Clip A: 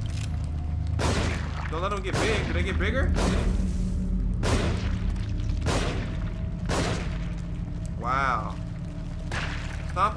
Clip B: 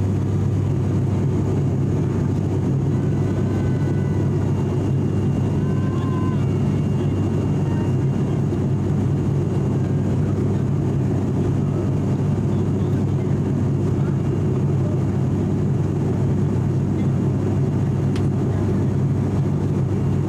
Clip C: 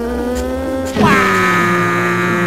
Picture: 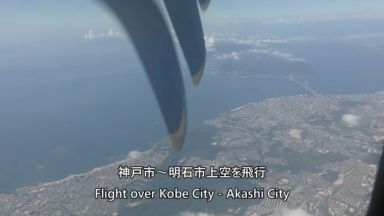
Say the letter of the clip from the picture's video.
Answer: B